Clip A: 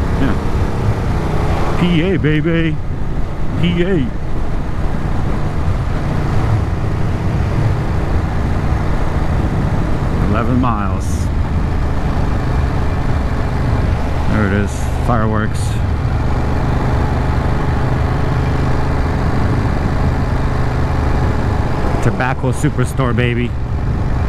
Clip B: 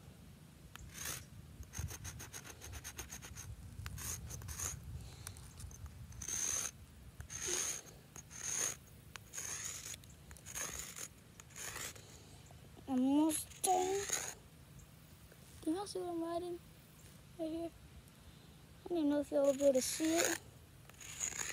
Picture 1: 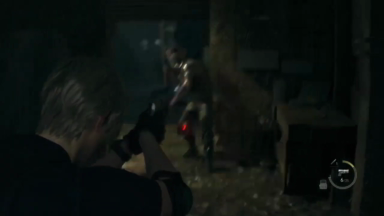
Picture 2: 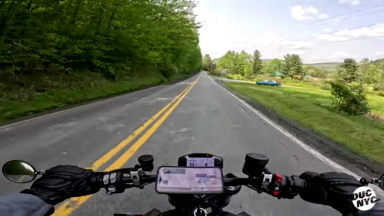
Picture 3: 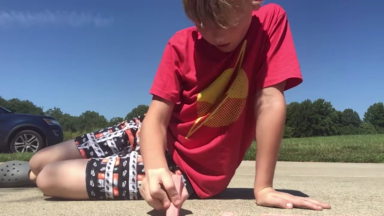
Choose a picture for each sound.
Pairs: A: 2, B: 3